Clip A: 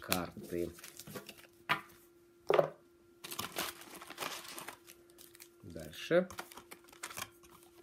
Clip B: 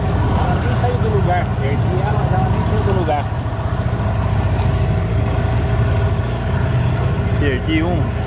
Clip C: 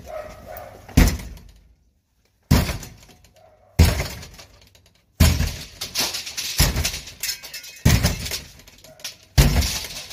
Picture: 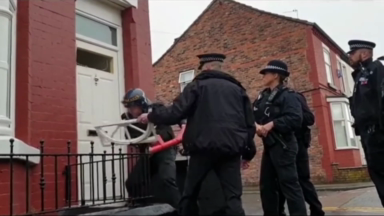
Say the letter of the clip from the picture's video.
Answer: C